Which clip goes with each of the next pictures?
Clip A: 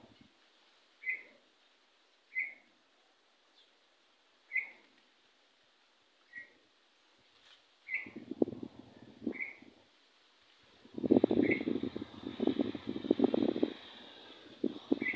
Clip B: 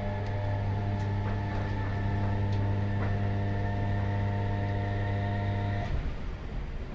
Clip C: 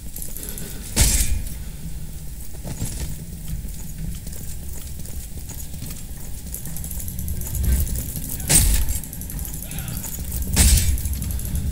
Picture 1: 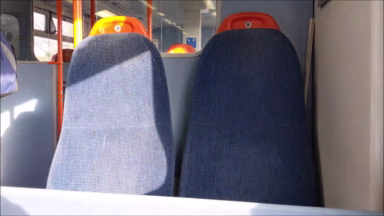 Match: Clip B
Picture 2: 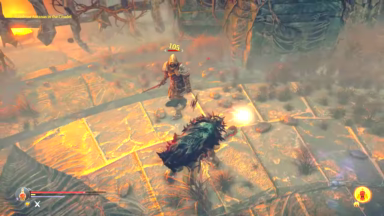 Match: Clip C